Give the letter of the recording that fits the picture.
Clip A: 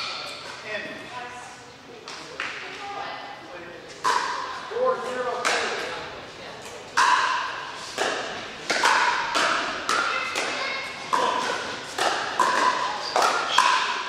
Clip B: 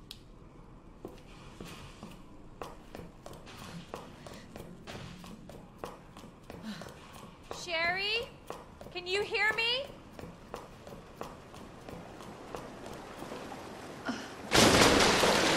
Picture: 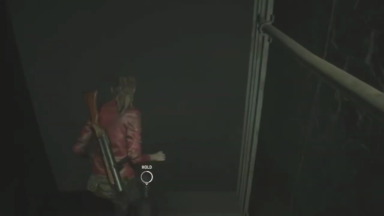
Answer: B